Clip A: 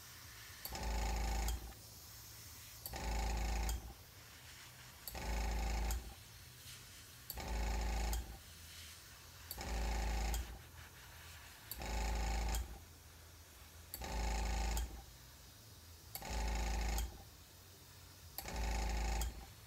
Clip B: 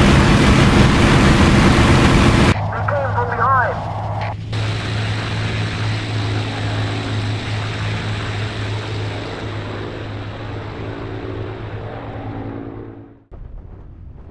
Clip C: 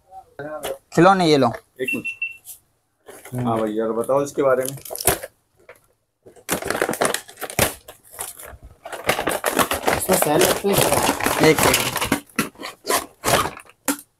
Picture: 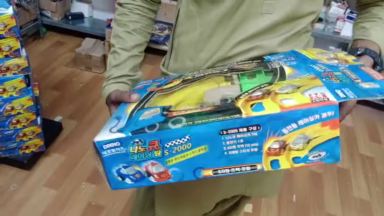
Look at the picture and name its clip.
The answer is C